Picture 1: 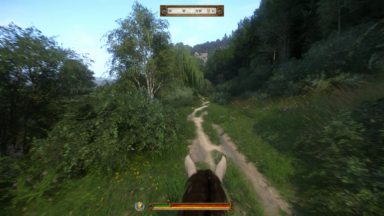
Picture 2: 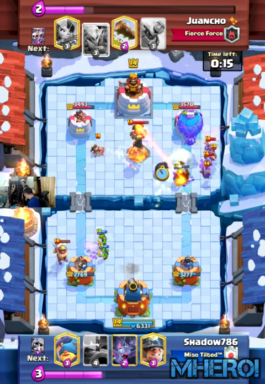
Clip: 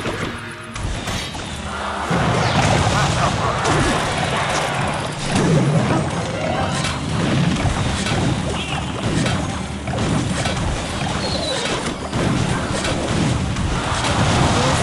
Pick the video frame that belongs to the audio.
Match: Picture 2